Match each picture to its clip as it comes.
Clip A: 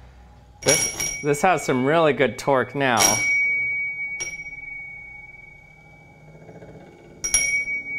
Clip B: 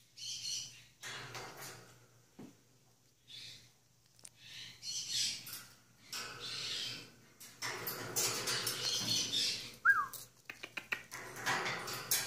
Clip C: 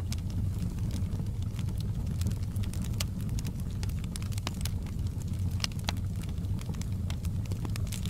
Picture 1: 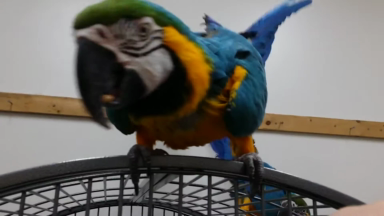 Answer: B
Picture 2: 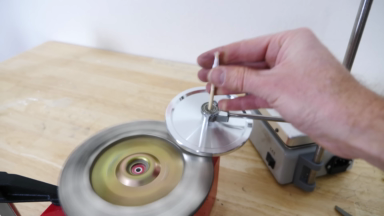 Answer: A